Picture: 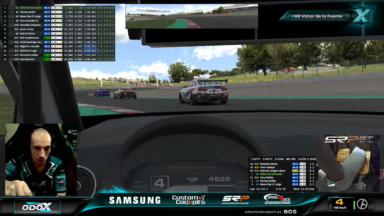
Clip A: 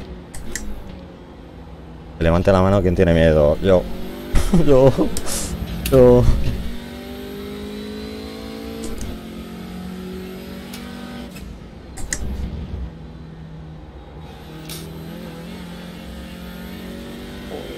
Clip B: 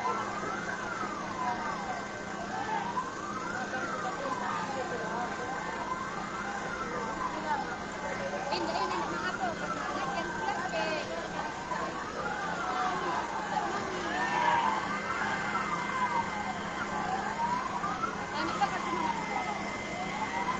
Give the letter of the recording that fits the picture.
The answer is A